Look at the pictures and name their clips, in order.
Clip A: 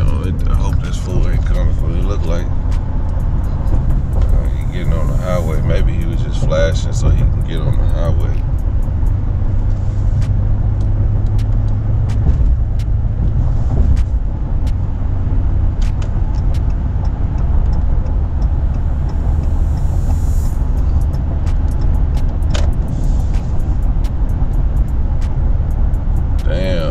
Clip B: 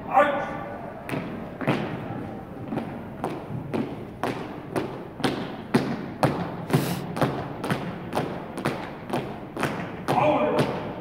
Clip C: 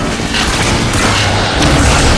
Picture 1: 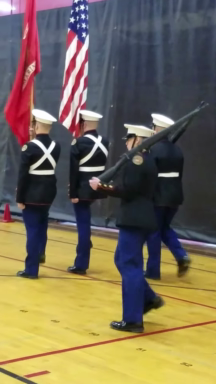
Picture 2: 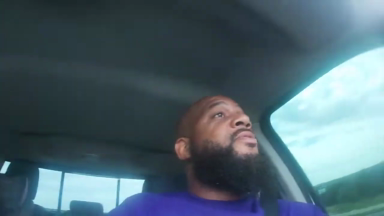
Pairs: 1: B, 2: A